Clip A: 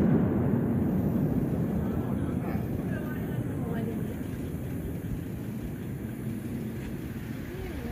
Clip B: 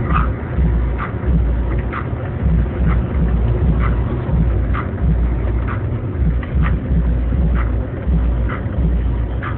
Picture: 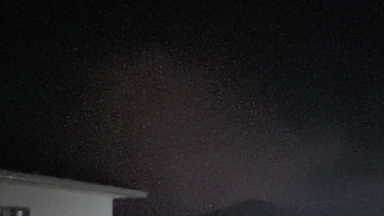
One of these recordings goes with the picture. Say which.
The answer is A